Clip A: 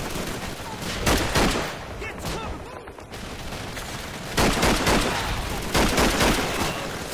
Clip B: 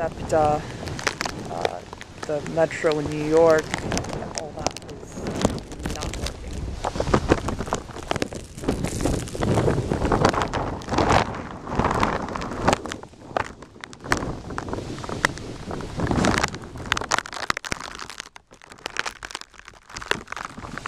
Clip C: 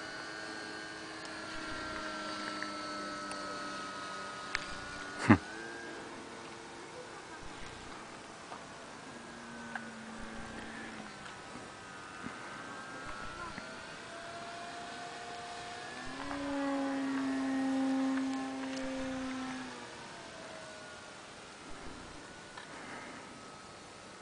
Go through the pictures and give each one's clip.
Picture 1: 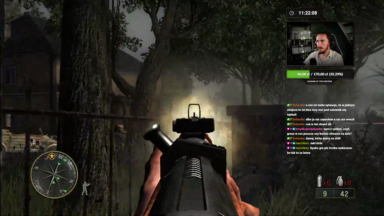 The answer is A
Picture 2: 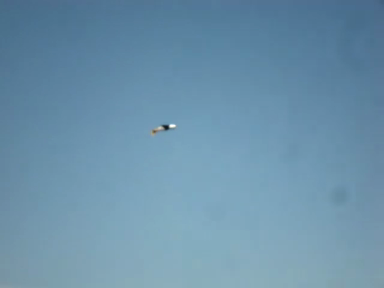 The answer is C